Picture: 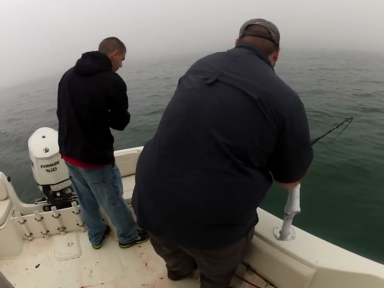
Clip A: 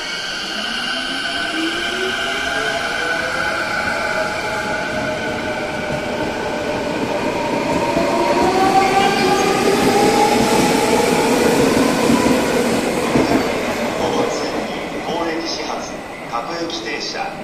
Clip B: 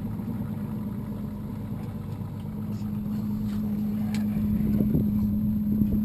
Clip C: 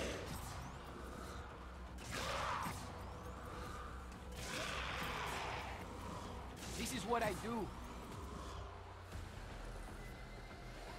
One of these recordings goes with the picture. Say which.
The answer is B